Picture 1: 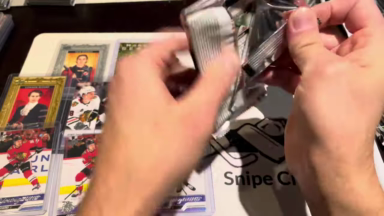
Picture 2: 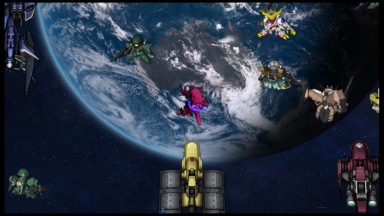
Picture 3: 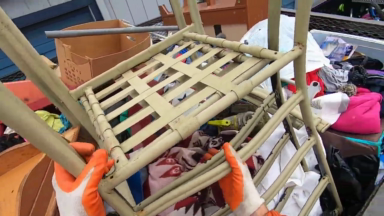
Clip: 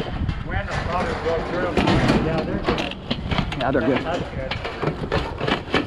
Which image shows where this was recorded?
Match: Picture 3